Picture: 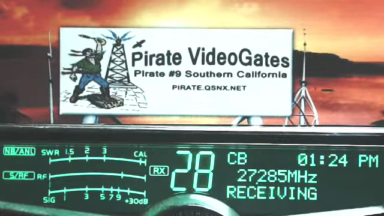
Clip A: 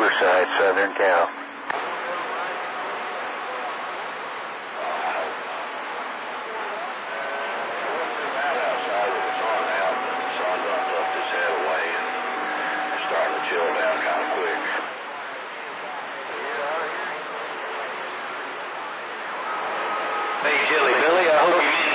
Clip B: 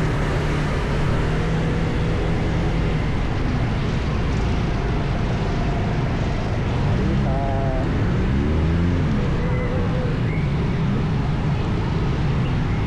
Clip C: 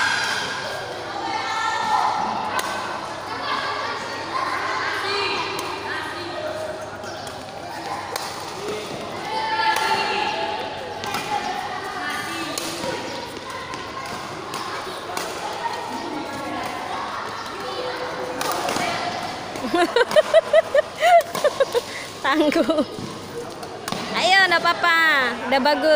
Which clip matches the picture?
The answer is A